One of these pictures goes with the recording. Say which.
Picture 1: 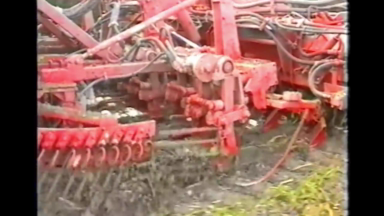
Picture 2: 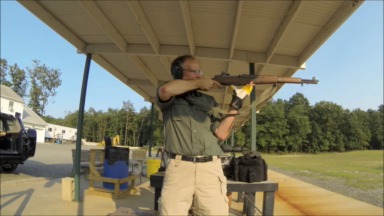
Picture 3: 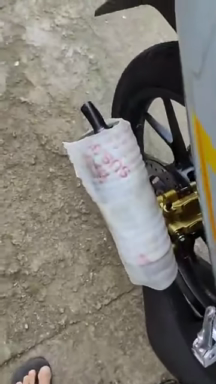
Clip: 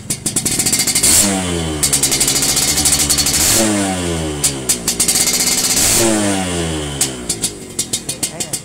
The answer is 3